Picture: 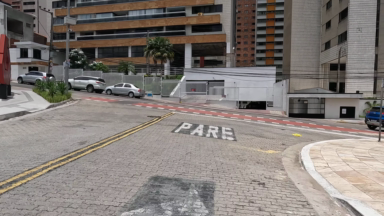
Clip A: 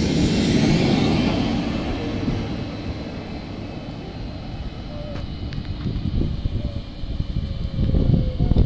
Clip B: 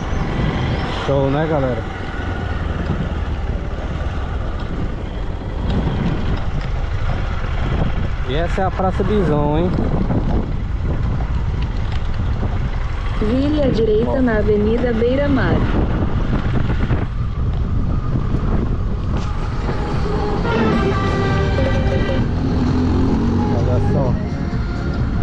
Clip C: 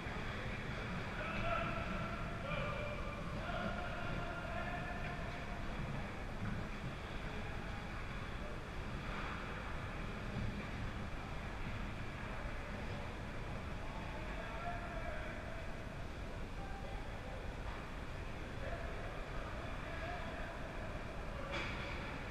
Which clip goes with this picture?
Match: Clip B